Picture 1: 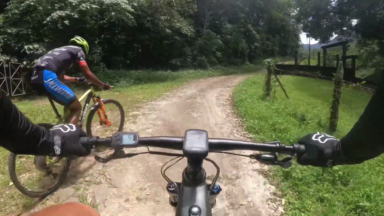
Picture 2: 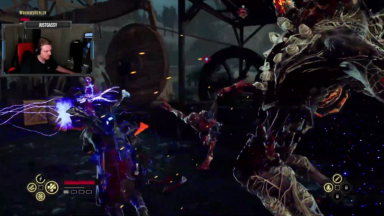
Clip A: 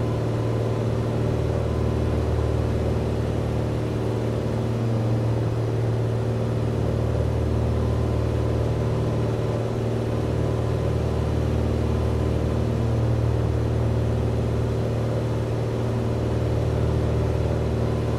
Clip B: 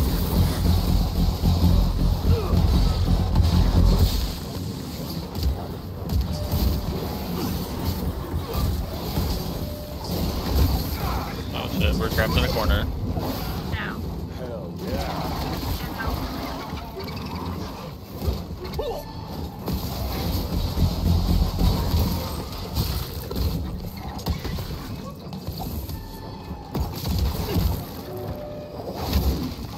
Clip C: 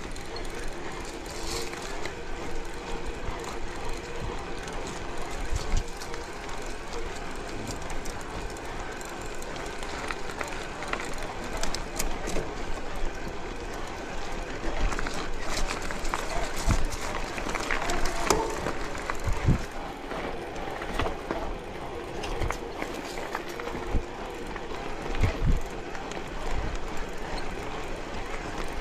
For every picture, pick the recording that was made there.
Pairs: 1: C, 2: B